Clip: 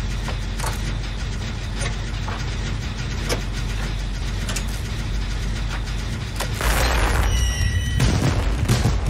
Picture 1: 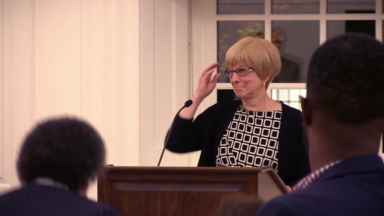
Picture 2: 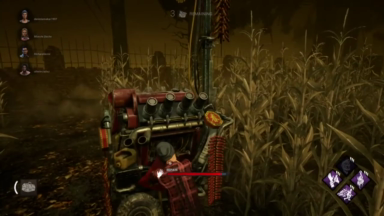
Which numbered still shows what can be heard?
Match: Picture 2